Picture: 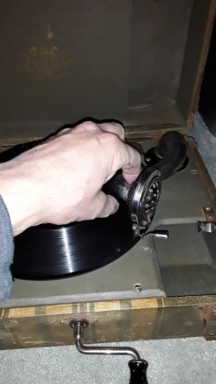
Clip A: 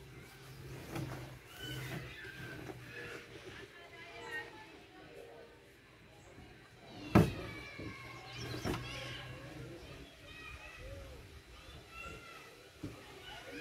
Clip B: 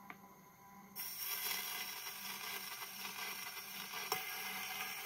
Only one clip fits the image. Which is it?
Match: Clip B